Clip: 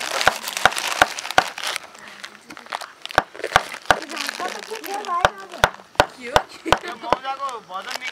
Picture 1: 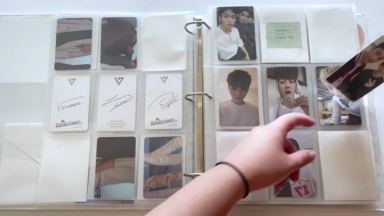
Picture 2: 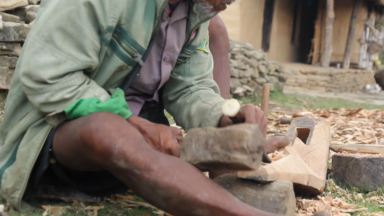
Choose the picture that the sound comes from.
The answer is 2